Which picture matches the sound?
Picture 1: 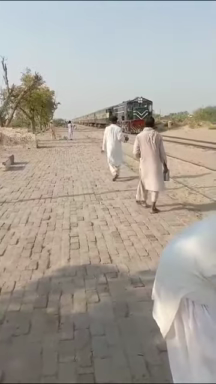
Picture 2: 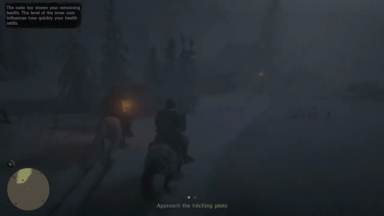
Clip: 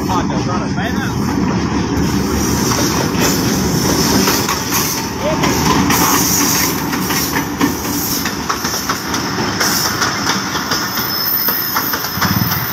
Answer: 1